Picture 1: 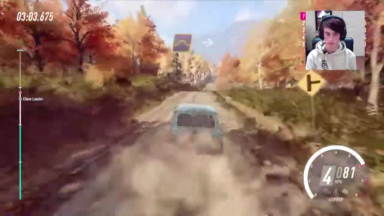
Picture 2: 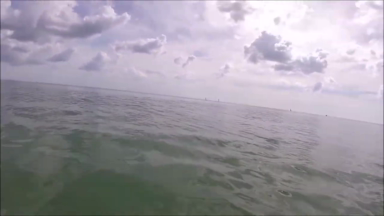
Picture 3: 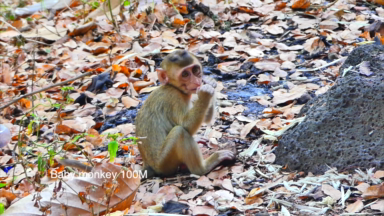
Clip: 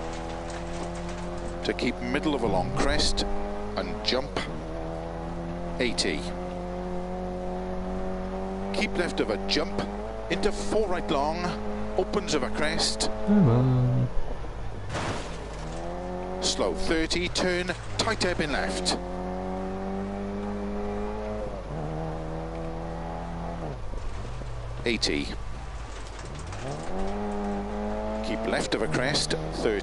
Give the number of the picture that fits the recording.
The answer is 1